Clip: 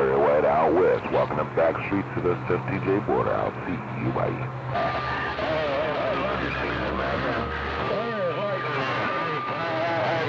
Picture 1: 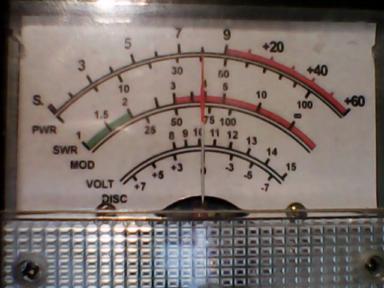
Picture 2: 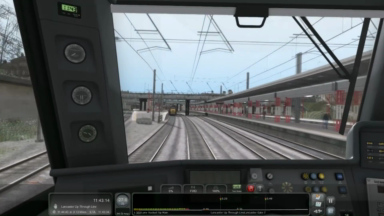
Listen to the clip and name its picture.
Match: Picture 1